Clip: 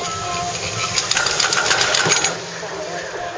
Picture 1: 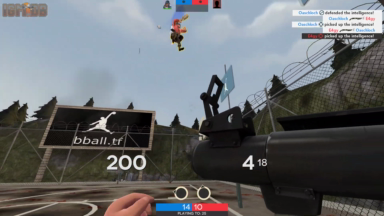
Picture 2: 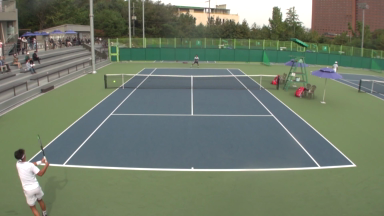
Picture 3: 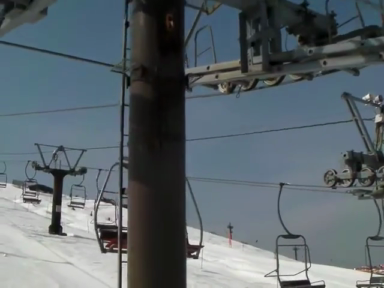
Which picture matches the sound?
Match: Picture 3